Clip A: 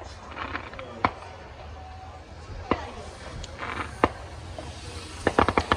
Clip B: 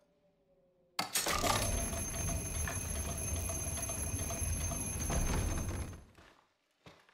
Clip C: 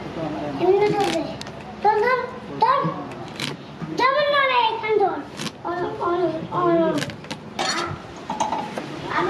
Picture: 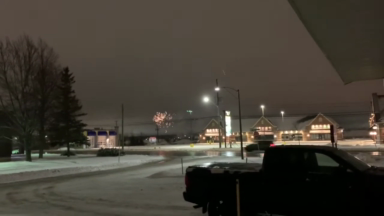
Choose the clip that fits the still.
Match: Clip A